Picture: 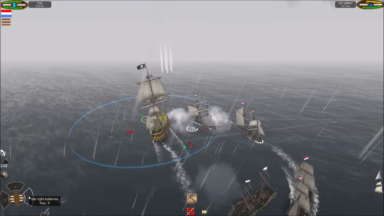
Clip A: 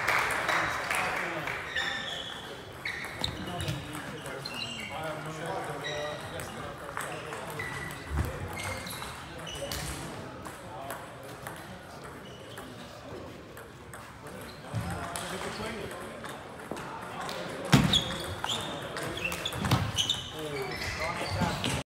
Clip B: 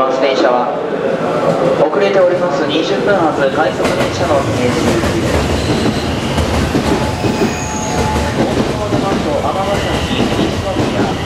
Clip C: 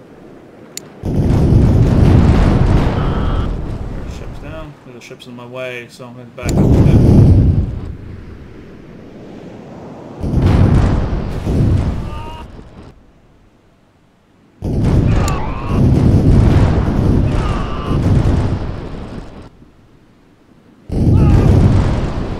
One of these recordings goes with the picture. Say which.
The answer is C